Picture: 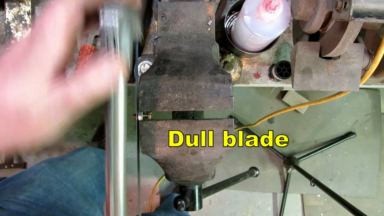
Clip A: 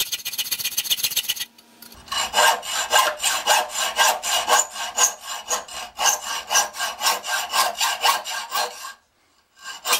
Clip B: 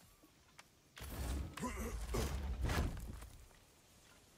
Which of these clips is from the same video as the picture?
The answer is A